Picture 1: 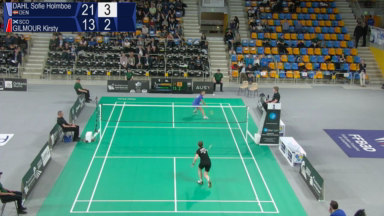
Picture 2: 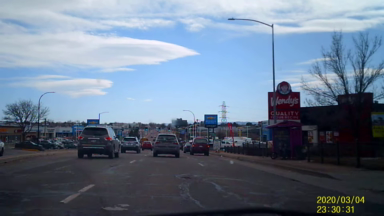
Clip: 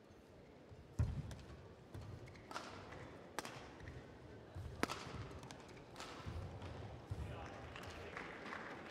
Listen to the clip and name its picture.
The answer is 1